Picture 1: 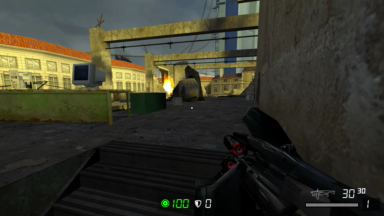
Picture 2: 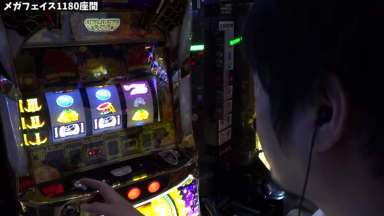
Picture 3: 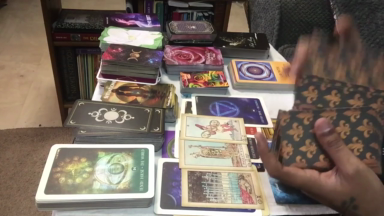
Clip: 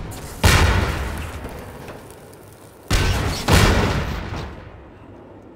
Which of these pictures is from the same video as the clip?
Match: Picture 1